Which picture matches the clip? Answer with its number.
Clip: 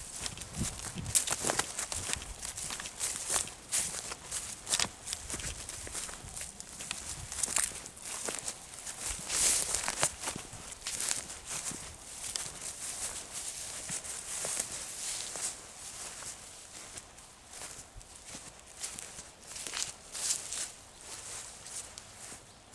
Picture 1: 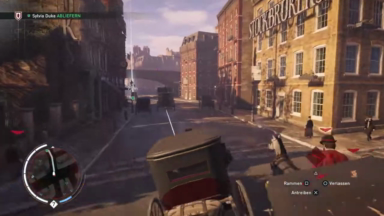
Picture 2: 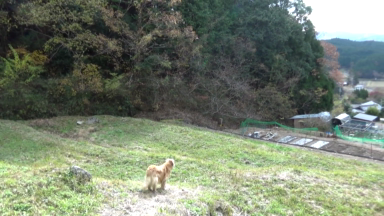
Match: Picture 2